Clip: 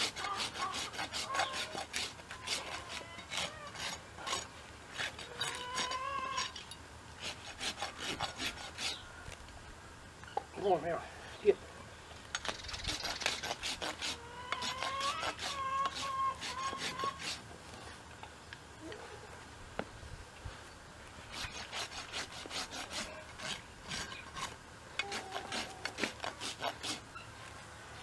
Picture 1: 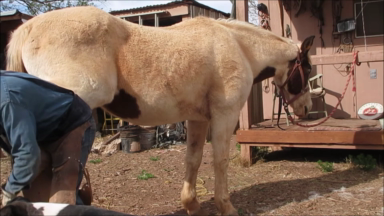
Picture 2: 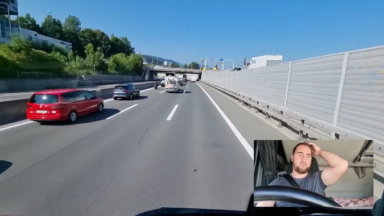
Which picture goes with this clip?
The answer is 1